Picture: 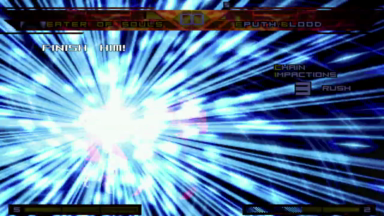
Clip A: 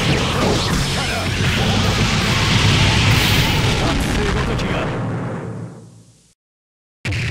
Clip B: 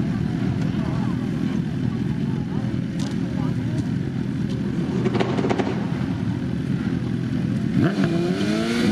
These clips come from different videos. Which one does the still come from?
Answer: A